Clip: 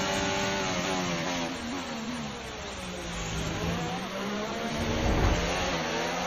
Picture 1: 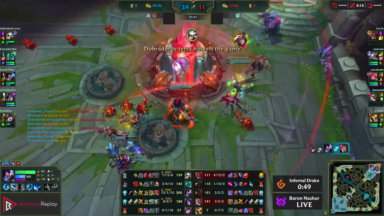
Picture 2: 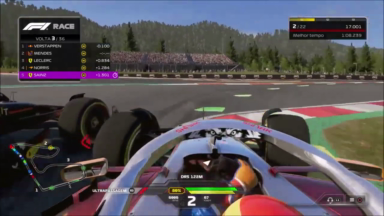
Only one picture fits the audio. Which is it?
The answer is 2